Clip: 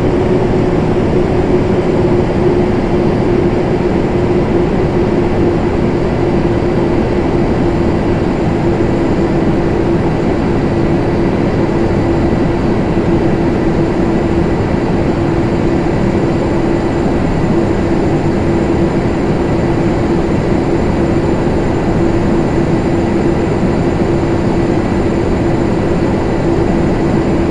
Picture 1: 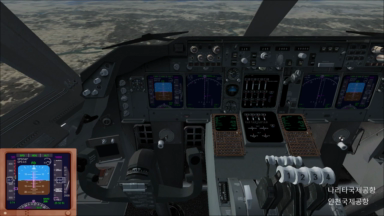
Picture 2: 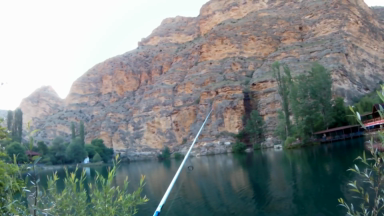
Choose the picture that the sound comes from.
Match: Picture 1